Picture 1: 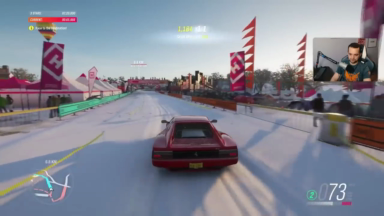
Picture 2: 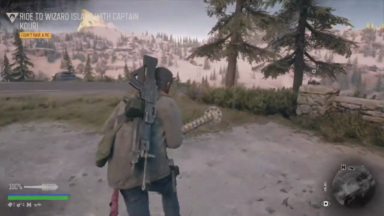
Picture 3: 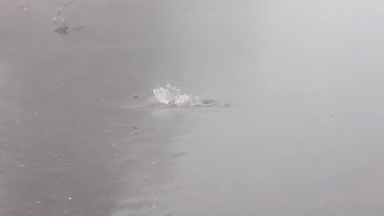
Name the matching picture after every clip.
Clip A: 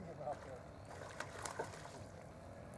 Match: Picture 3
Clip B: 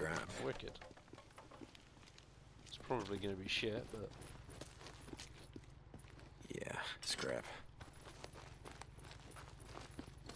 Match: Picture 2